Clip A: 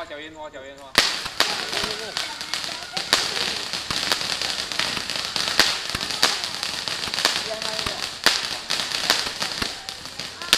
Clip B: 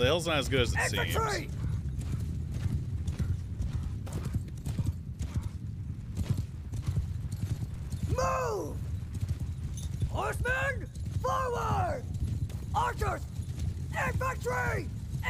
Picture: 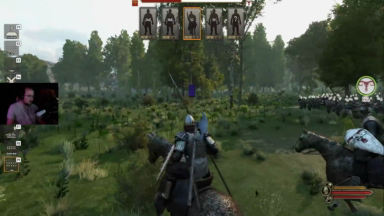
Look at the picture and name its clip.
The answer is B